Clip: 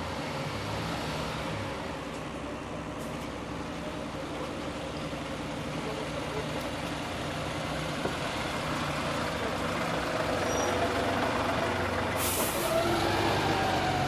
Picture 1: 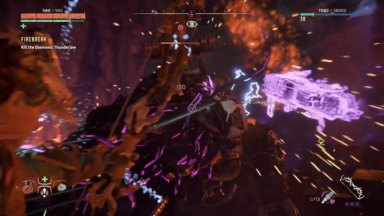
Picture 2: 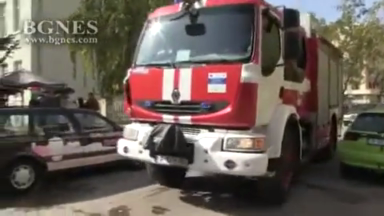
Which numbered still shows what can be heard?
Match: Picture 2